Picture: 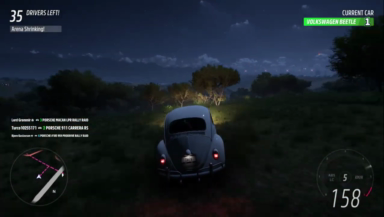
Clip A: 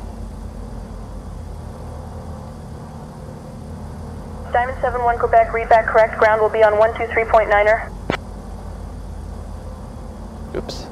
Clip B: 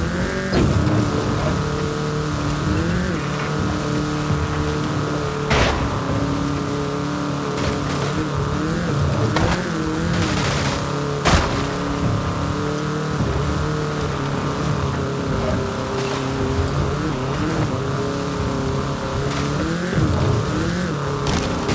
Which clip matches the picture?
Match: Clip B